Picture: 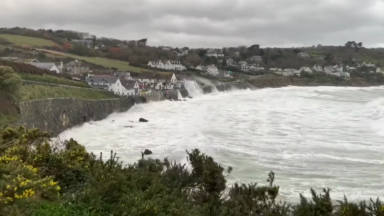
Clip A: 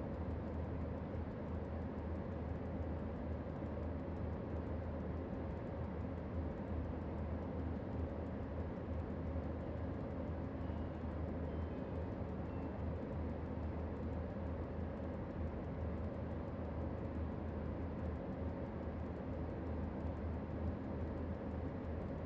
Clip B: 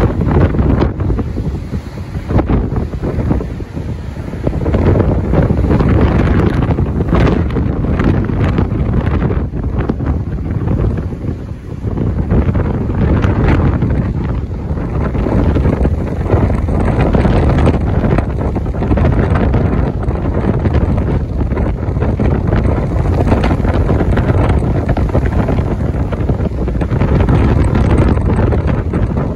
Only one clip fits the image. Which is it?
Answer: B